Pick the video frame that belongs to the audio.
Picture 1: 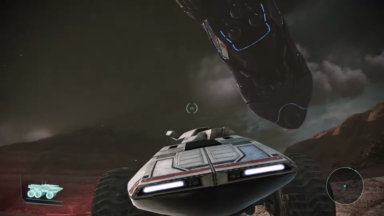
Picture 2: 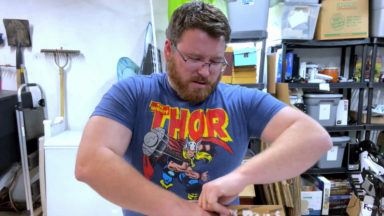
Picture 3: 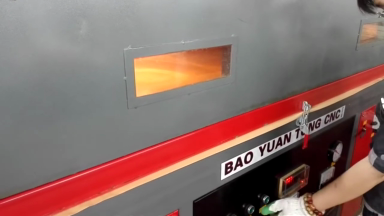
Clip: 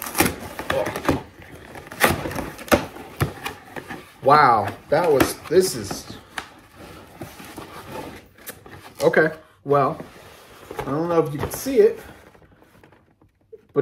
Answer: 2